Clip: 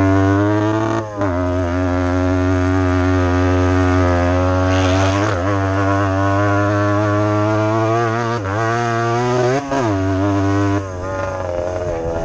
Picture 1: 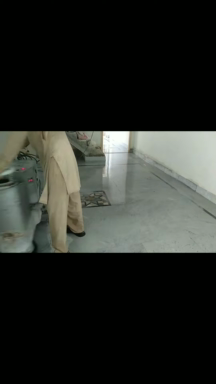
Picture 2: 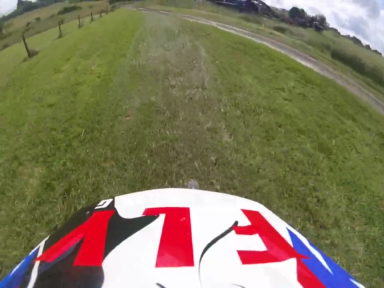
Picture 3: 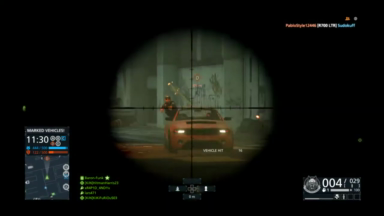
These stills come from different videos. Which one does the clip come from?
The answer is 2